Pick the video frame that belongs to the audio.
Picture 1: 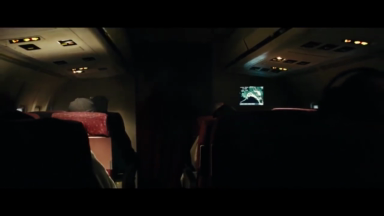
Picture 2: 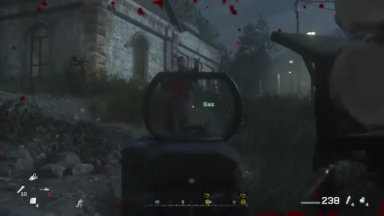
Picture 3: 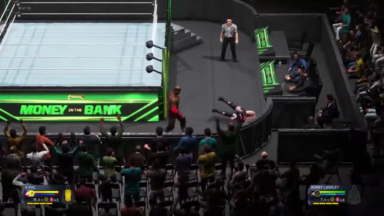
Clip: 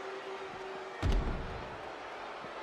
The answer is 3